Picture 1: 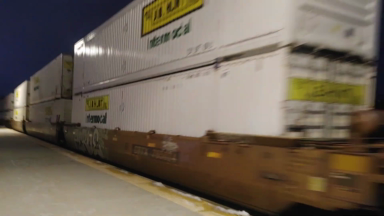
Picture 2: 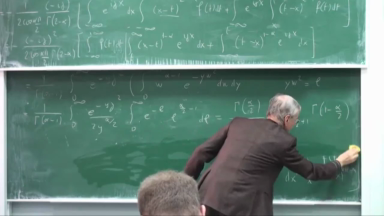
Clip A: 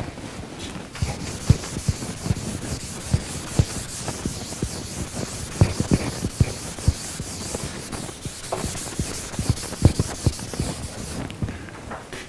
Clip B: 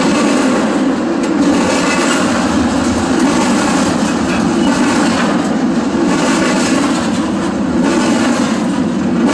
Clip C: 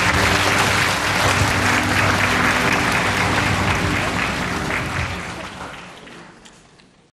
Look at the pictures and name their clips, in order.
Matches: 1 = B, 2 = A